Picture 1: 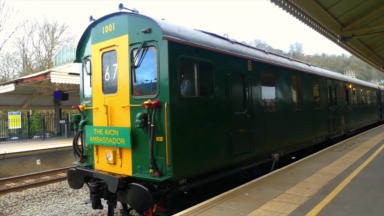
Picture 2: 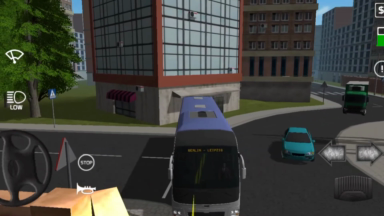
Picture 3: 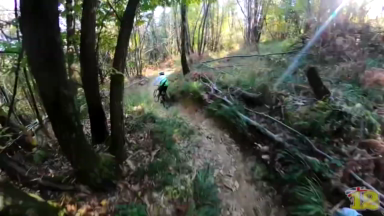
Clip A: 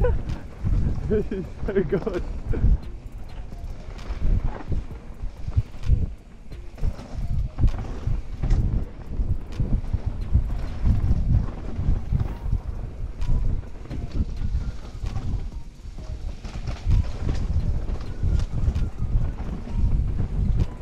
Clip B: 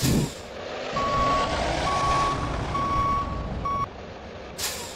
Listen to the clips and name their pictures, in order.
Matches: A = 3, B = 2